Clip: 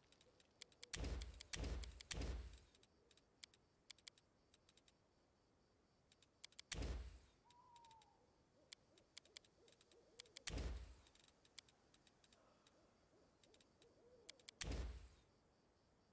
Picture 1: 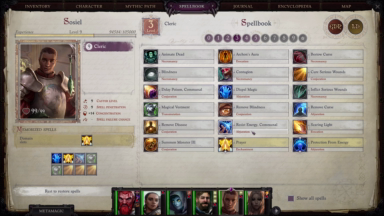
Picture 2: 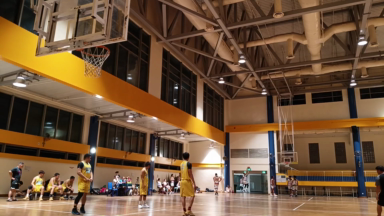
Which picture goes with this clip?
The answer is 1